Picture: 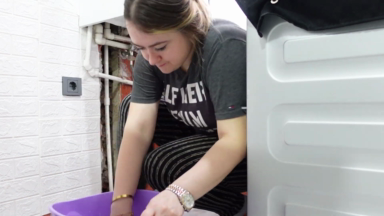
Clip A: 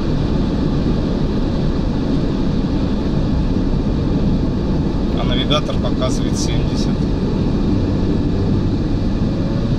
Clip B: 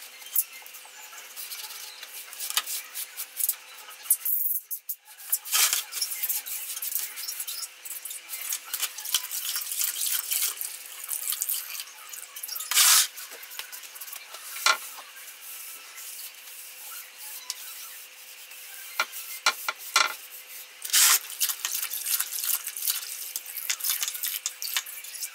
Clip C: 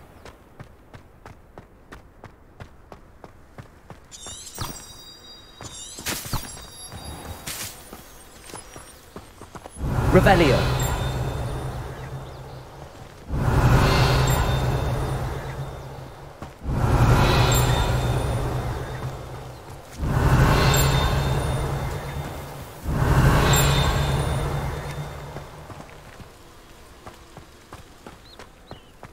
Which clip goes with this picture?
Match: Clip B